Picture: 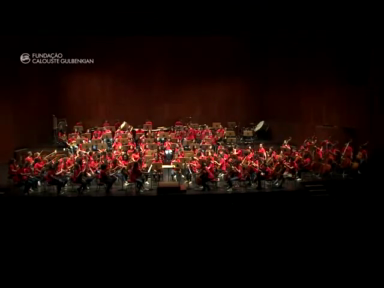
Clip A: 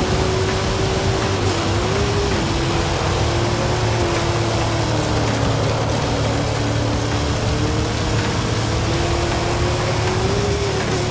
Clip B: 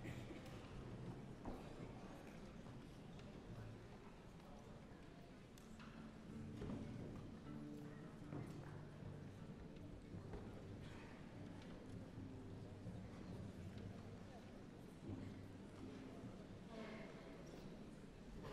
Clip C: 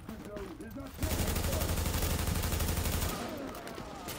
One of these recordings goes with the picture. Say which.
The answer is B